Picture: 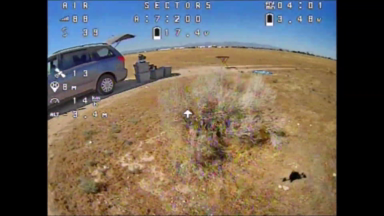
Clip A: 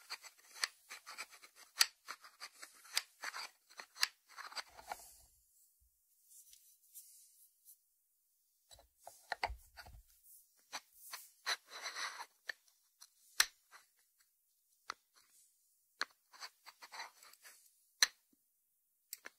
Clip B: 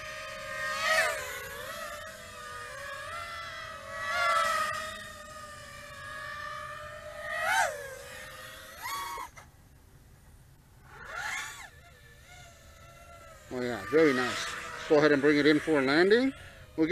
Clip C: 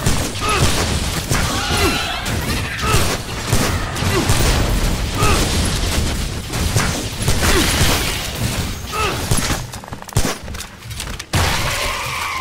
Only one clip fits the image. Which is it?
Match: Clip B